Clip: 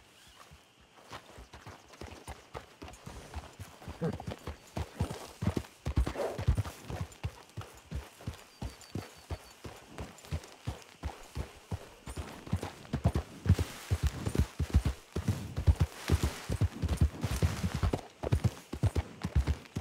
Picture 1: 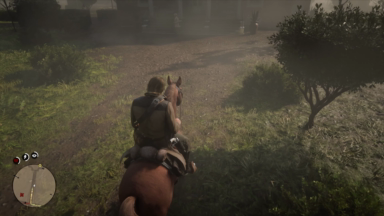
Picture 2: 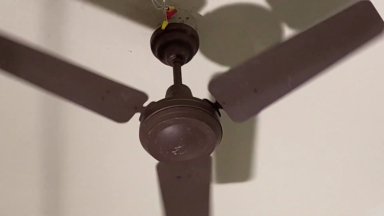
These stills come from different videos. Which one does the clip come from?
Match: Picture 1